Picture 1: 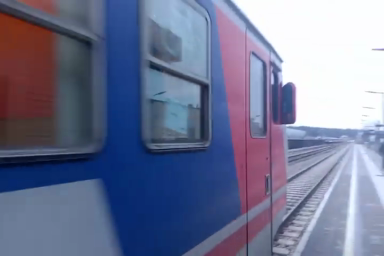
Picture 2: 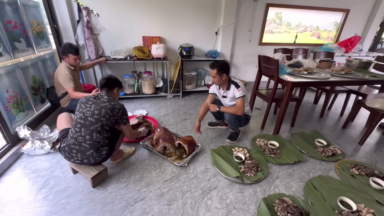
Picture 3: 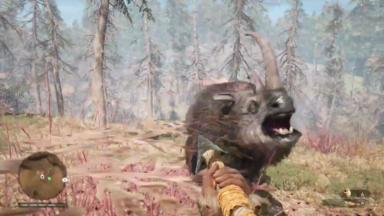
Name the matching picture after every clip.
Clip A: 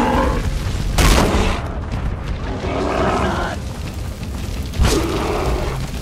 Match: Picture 3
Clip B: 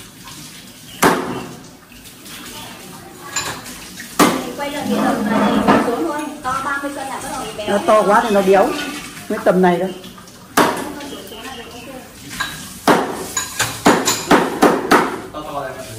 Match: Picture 2